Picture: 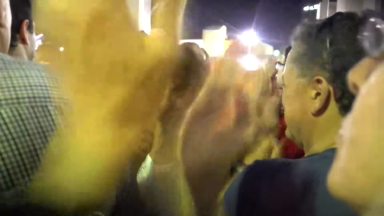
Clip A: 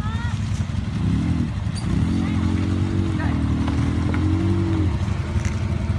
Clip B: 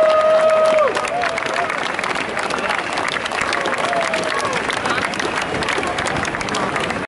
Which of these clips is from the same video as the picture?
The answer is B